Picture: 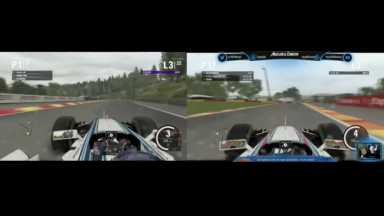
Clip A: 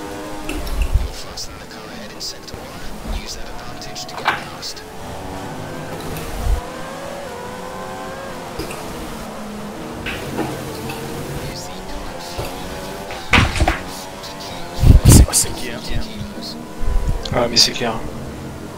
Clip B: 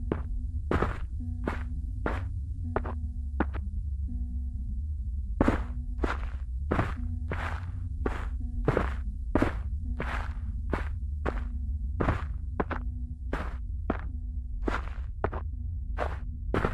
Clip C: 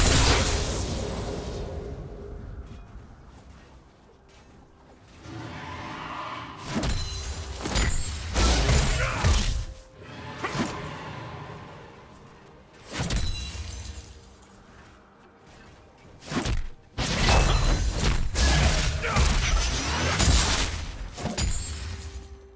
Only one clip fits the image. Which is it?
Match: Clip A